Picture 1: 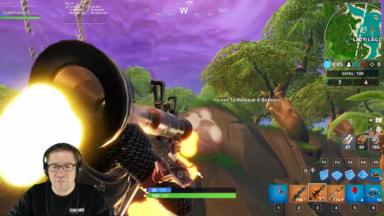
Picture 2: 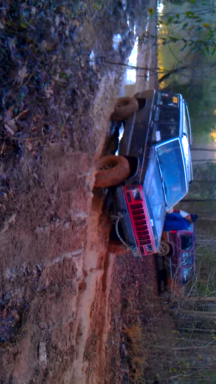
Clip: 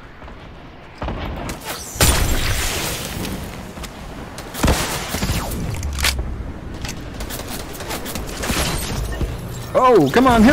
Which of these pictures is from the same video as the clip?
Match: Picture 1